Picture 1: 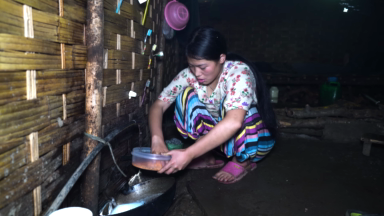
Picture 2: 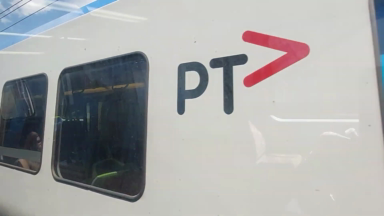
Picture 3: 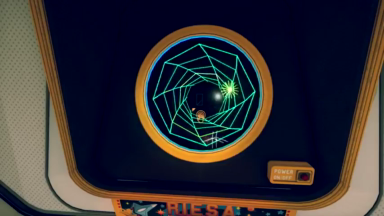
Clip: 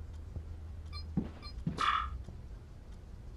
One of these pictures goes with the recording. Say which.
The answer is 3